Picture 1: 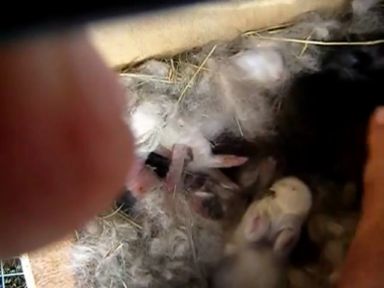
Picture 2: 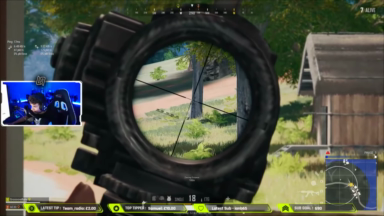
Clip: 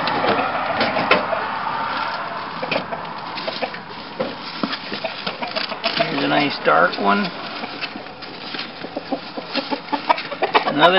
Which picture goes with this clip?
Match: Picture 1